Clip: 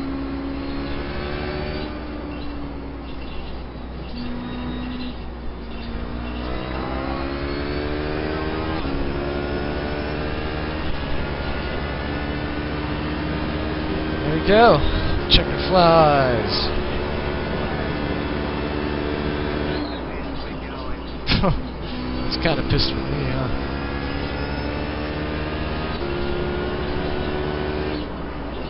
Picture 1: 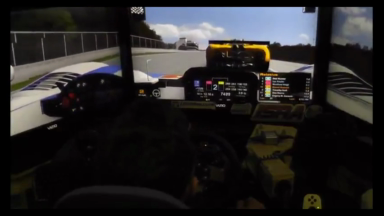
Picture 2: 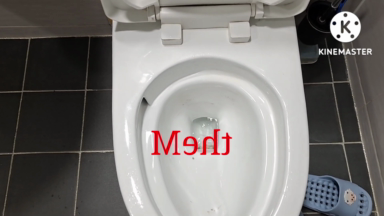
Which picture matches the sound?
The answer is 1